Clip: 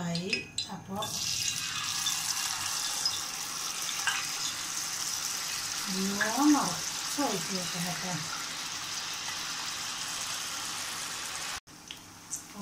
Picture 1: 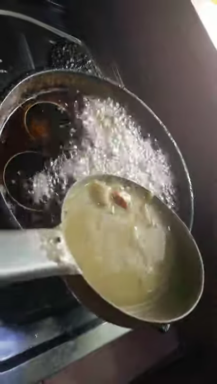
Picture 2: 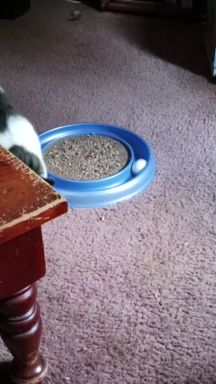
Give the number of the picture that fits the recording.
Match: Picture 1